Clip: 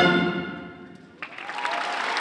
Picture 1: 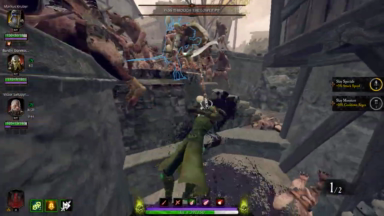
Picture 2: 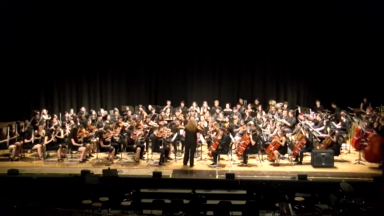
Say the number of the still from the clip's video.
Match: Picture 2